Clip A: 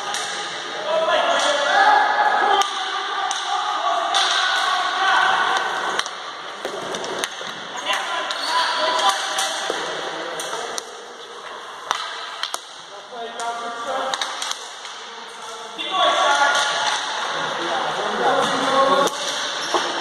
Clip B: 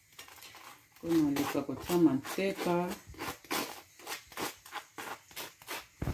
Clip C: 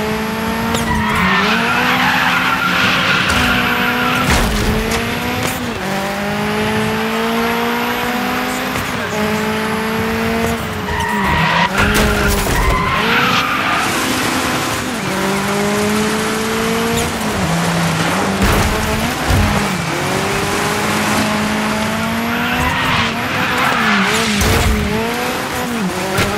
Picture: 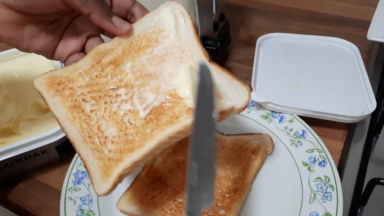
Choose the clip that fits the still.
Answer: B